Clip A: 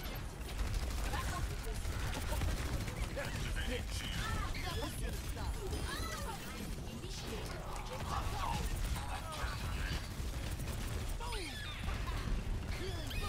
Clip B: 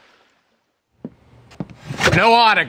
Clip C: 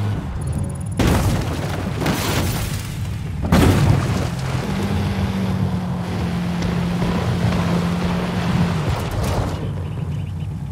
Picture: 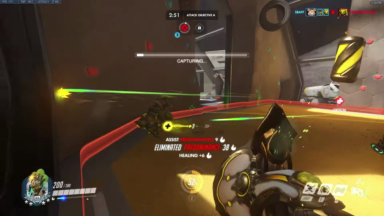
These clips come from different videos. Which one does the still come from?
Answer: A